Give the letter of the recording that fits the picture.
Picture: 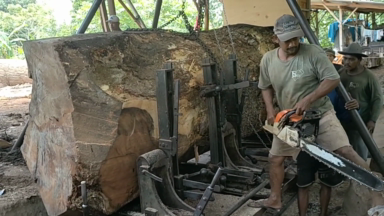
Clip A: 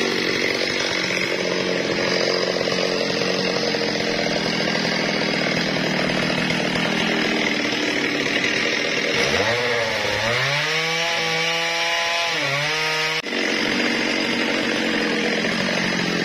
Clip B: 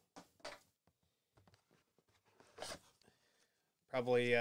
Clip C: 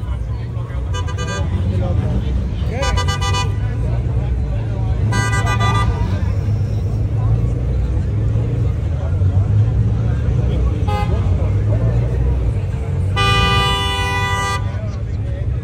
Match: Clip A